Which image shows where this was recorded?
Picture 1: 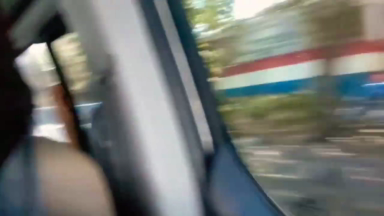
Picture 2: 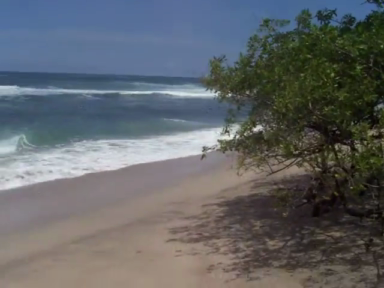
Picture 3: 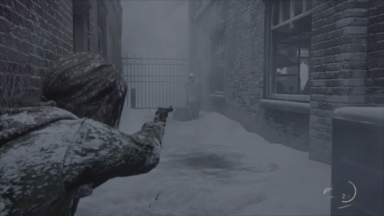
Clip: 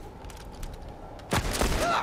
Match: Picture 3